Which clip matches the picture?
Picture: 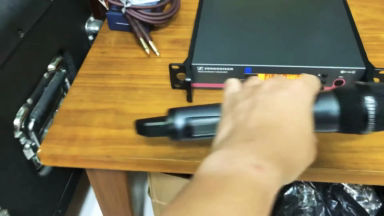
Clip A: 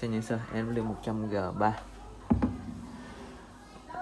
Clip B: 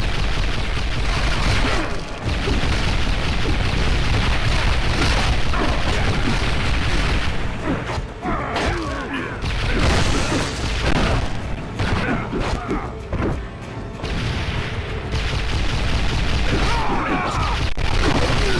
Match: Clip A